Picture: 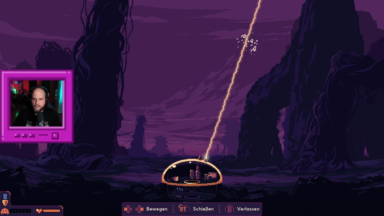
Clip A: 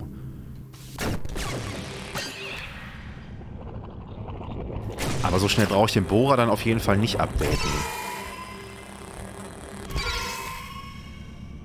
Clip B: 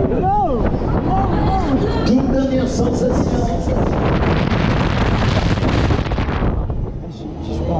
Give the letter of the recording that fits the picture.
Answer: A